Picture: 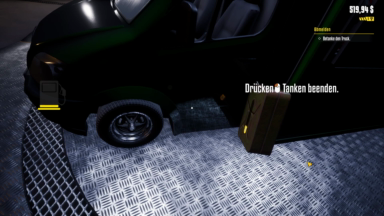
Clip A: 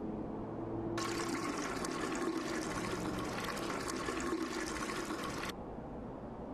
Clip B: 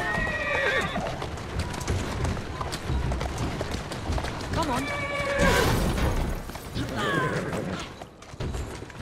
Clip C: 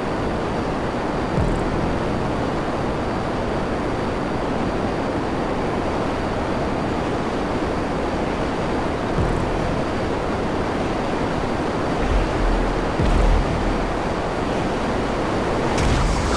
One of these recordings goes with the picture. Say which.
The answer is A